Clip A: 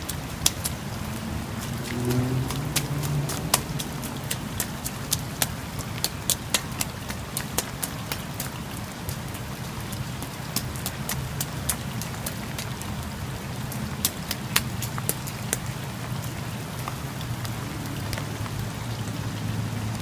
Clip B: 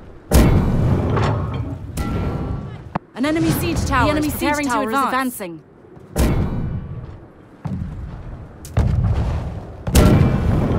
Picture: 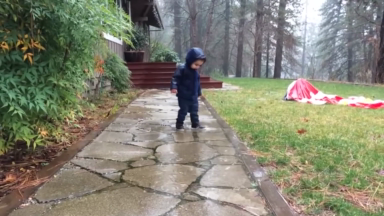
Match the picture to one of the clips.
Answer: A